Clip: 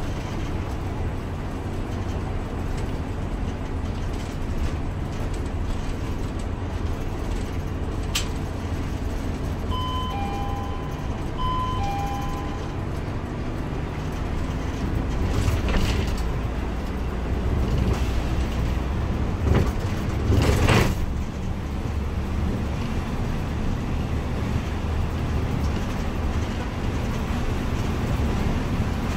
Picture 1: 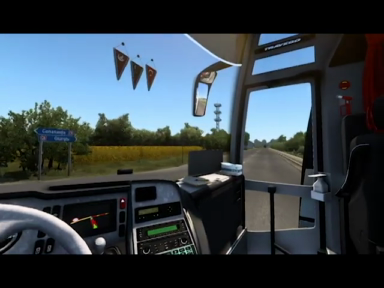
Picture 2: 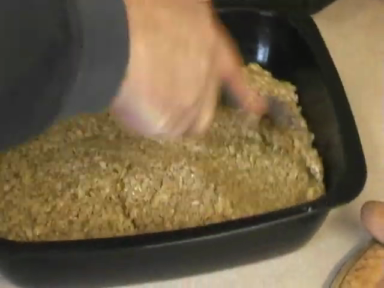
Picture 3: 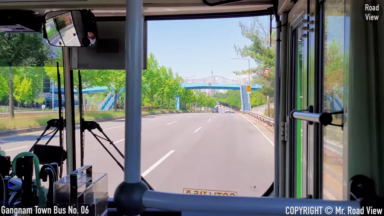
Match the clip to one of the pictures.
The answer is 3